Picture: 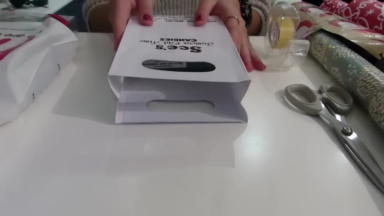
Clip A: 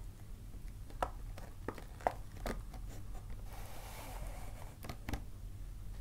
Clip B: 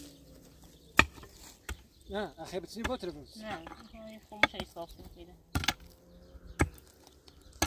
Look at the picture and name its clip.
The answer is A